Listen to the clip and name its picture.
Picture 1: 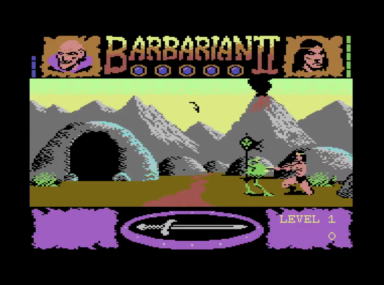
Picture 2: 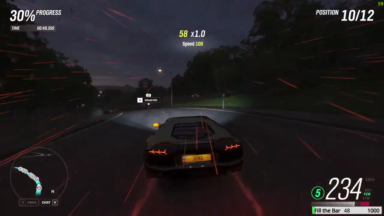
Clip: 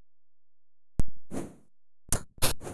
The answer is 1